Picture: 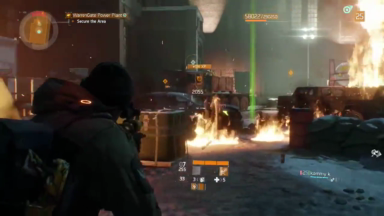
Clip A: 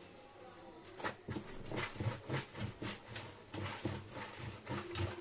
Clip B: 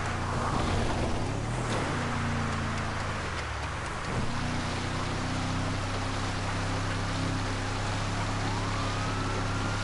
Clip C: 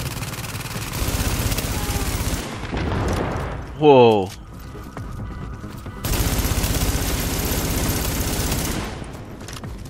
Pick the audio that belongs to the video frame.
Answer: C